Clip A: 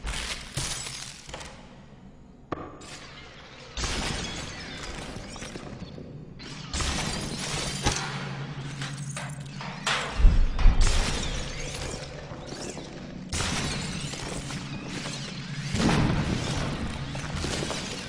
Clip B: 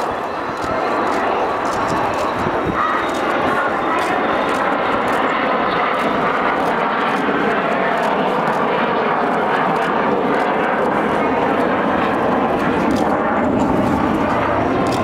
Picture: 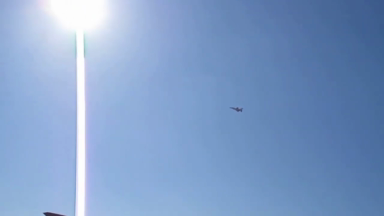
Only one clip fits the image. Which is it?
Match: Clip B